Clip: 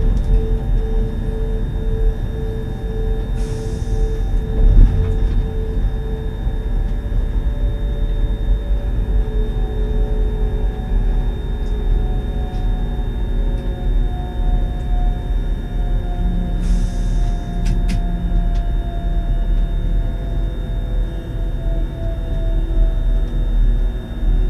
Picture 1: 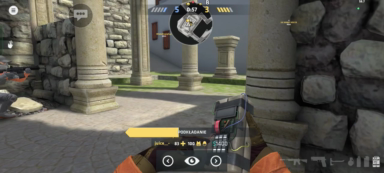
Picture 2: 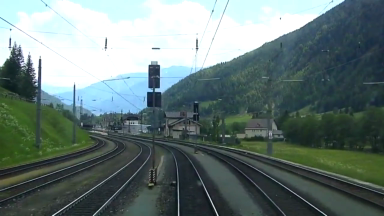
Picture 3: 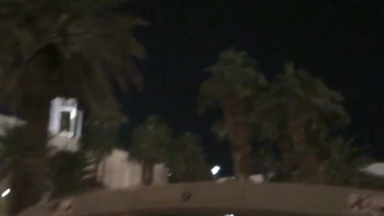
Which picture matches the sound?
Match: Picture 2